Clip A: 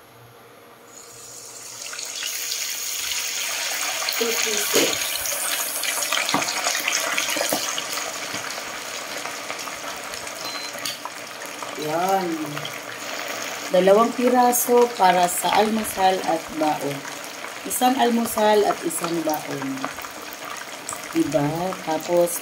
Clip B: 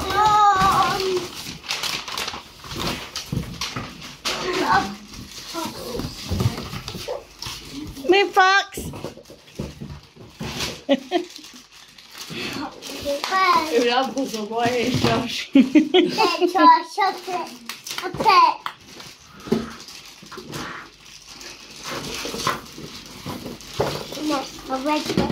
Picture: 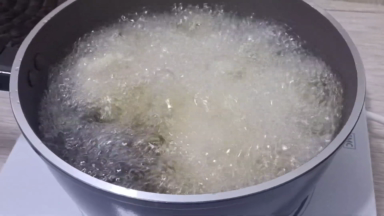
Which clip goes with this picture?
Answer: A